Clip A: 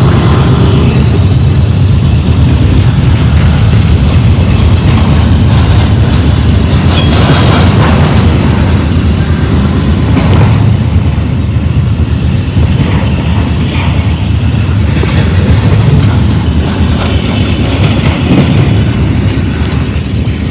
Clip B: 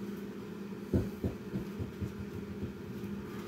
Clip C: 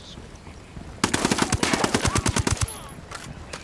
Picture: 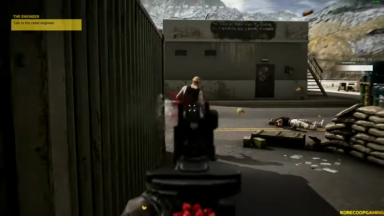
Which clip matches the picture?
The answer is C